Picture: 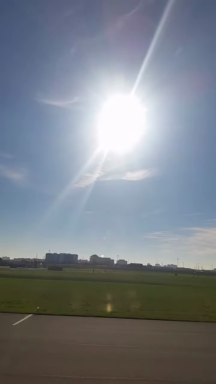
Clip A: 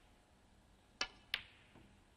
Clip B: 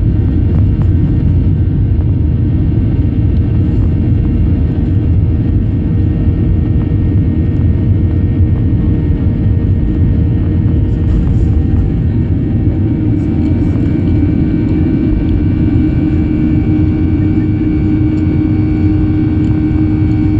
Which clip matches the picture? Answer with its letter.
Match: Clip B